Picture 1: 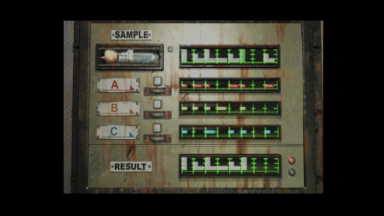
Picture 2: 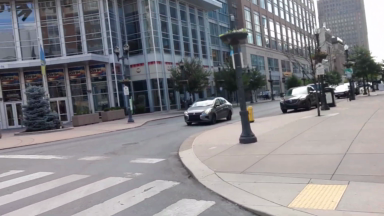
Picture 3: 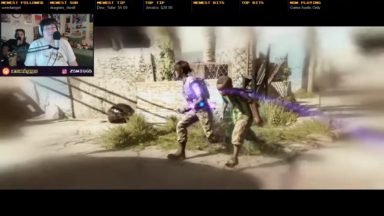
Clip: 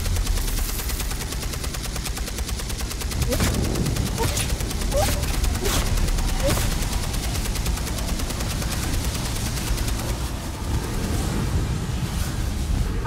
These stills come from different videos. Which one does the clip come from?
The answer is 3